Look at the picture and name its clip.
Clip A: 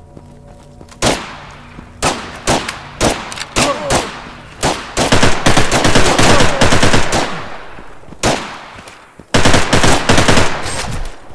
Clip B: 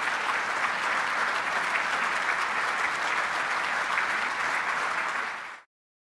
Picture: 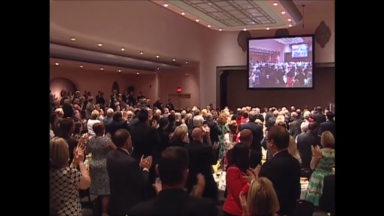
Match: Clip B